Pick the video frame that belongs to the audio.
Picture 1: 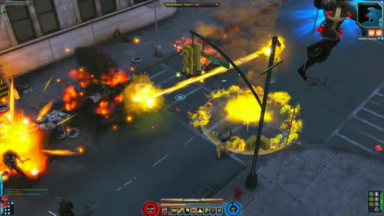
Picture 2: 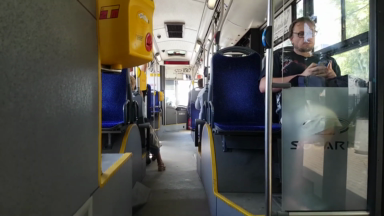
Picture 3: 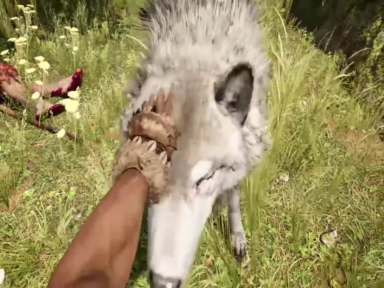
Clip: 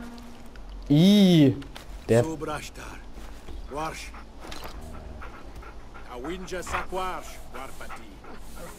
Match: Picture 3